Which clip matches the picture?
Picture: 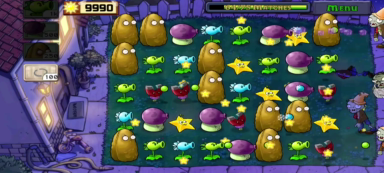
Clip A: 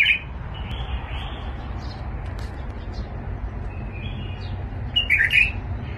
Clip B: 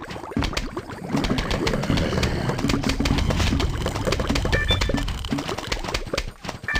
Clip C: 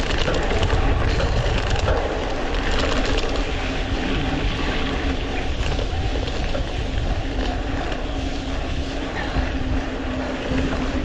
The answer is B